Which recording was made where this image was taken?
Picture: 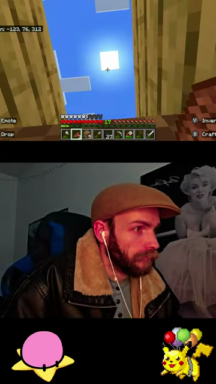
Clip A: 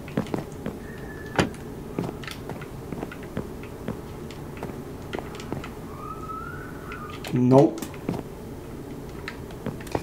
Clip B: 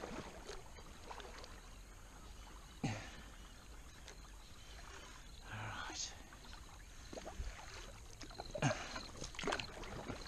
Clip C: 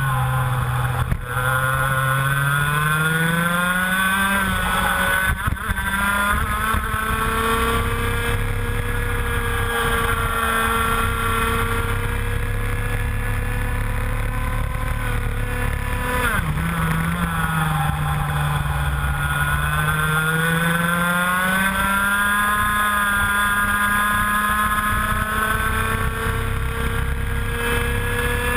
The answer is A